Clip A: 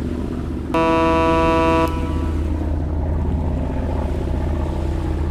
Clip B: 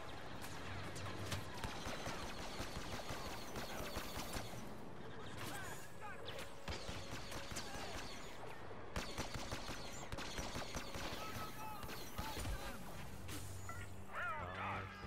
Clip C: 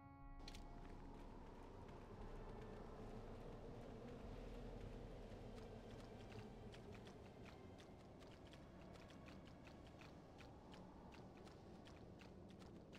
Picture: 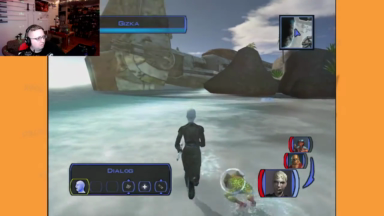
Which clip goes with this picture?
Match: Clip C